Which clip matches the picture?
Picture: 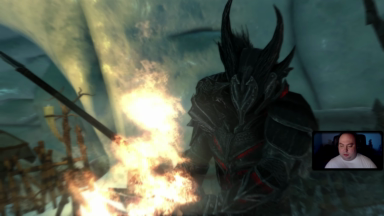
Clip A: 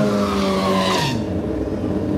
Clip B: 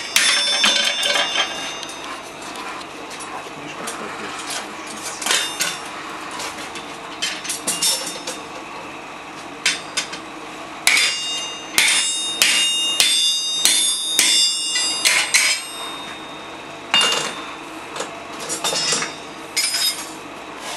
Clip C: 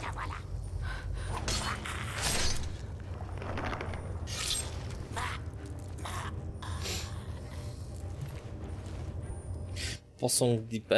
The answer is C